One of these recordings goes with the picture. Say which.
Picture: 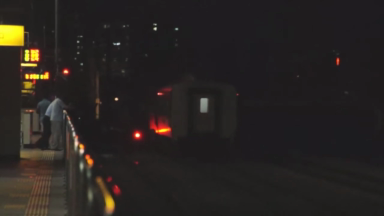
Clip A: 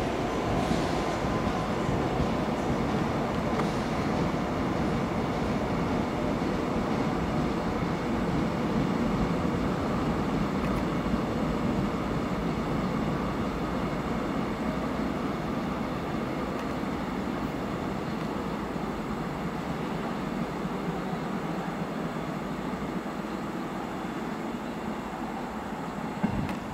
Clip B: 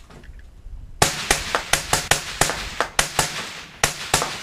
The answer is A